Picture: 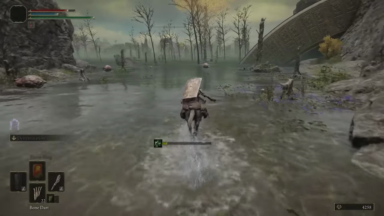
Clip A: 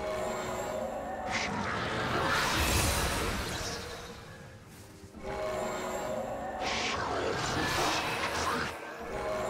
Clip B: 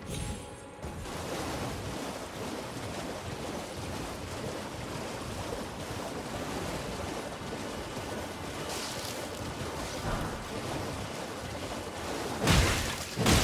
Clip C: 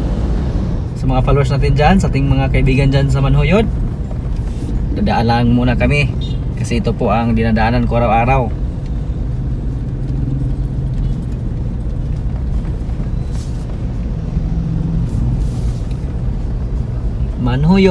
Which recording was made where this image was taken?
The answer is B